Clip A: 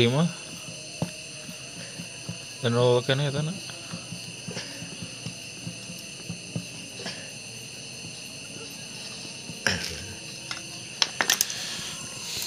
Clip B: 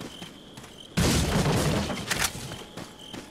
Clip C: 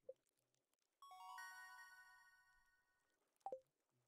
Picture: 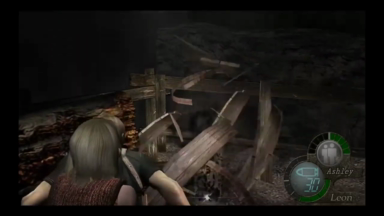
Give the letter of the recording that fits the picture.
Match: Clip B